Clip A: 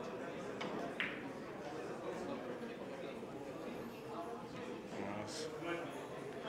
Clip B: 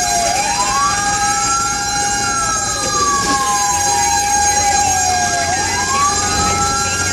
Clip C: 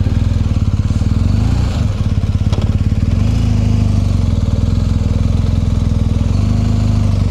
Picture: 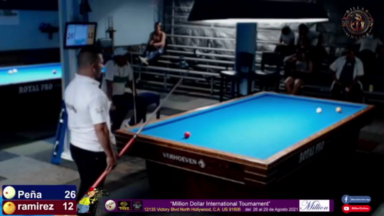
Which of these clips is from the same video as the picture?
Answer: A